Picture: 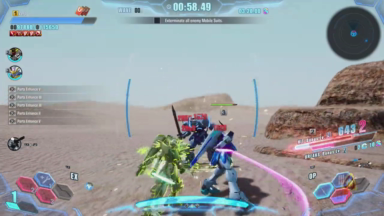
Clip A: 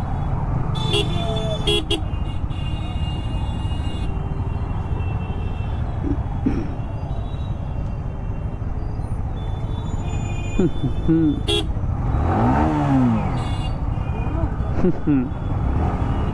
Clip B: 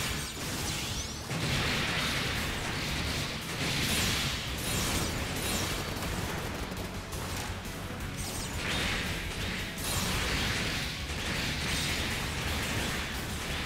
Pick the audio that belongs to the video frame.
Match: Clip B